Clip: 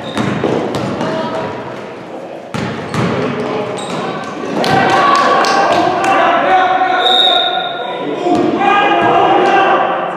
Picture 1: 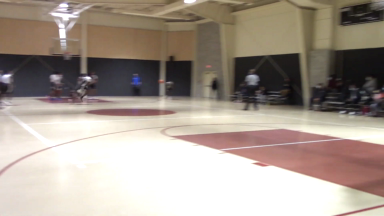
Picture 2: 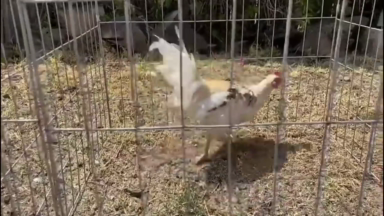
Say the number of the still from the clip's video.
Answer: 1